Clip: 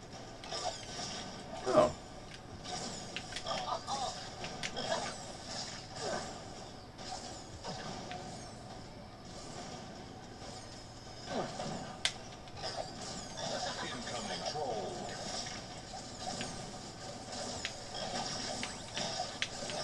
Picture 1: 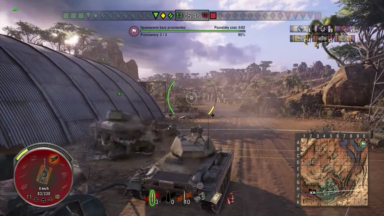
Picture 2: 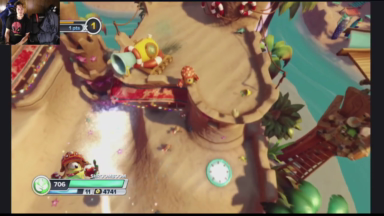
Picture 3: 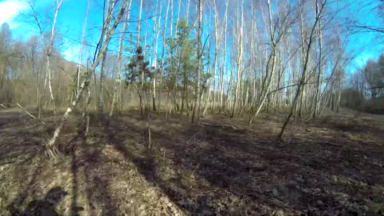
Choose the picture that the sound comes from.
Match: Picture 2